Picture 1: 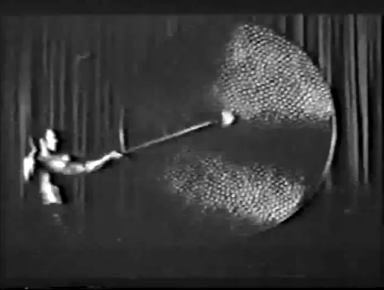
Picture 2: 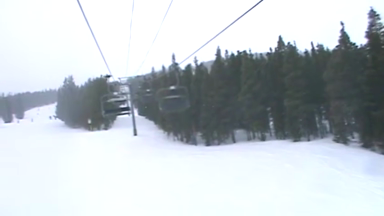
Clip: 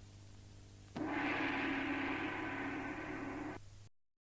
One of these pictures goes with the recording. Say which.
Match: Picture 1